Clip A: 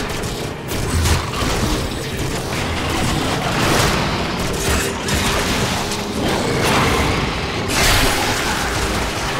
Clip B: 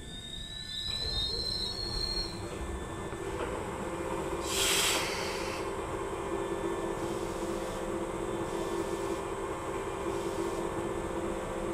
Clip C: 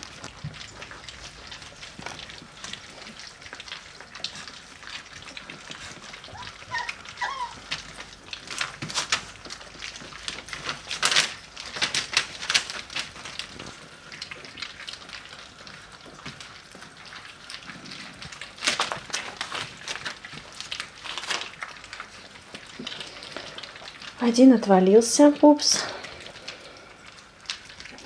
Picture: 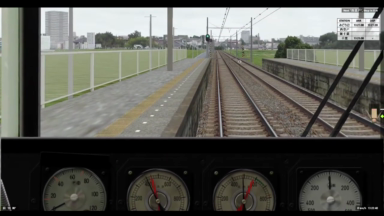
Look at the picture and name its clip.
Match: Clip B